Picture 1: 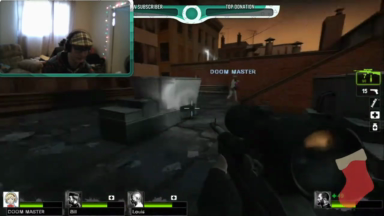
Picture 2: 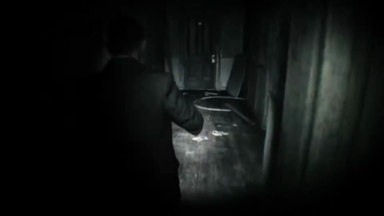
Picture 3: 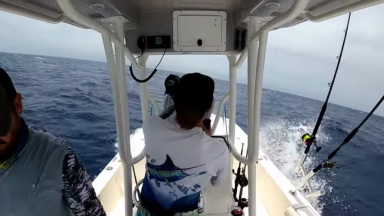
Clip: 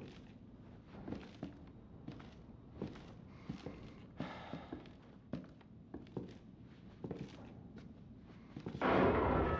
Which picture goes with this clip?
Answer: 2